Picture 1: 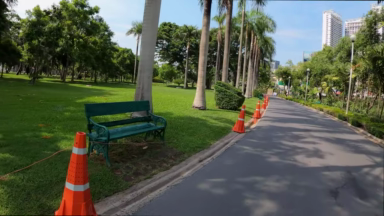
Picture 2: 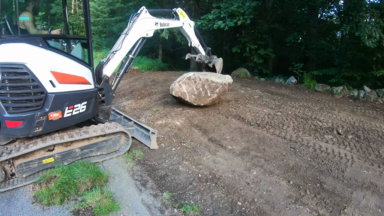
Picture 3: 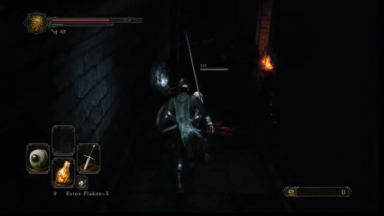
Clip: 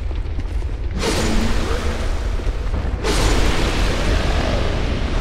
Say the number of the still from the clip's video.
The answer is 3